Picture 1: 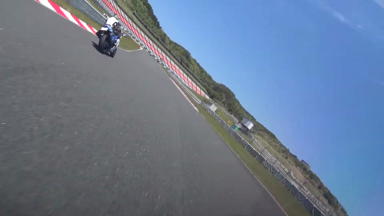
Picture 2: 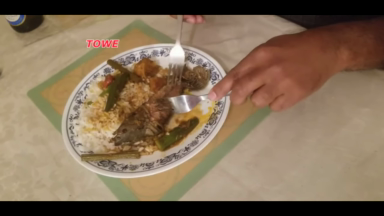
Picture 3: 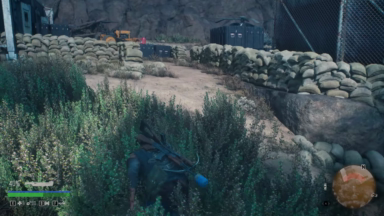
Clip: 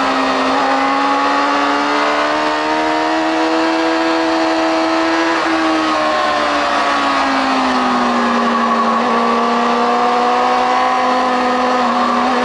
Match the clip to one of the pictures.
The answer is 1